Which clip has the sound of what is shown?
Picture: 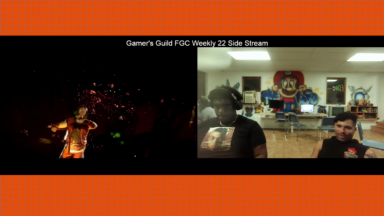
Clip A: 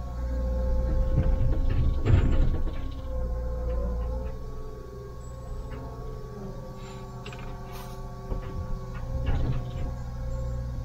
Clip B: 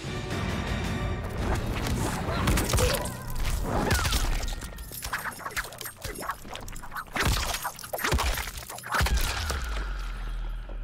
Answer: B